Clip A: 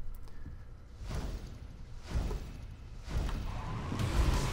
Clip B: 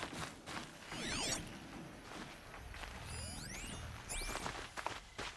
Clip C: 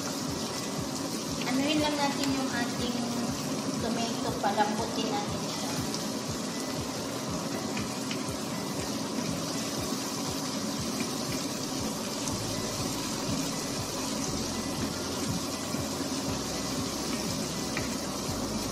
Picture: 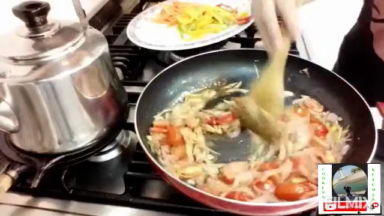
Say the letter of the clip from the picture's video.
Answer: C